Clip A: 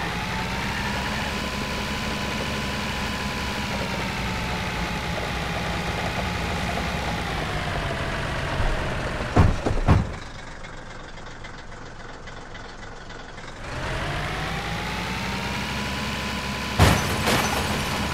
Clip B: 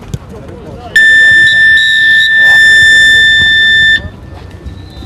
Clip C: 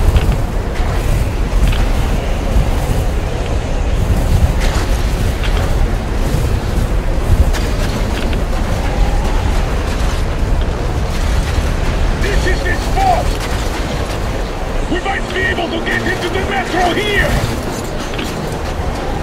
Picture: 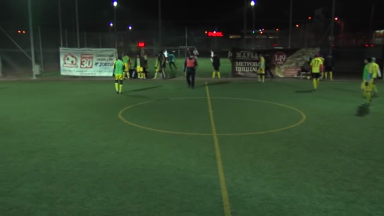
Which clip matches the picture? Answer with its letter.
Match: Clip B